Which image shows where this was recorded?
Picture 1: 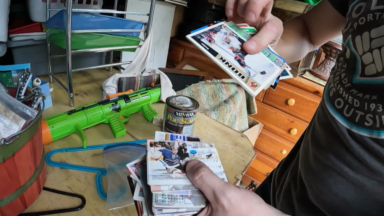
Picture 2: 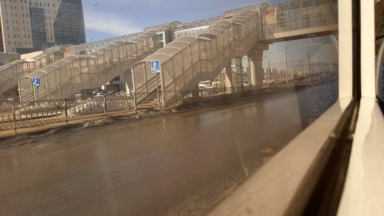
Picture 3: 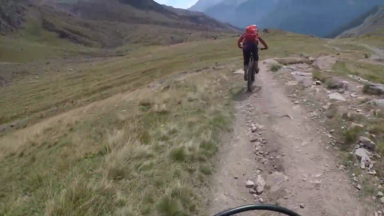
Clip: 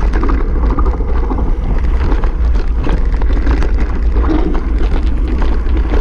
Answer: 3